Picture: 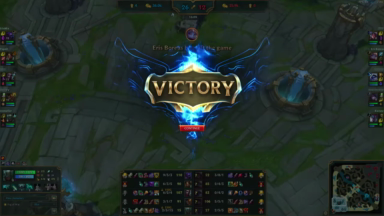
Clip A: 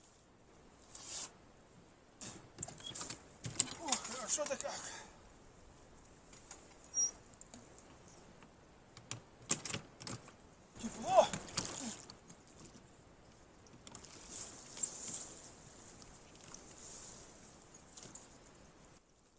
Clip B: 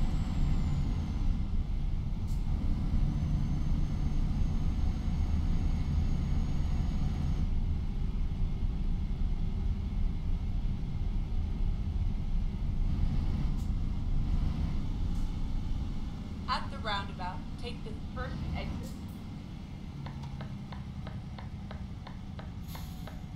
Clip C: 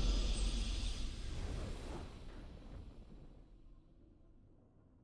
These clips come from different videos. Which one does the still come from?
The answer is C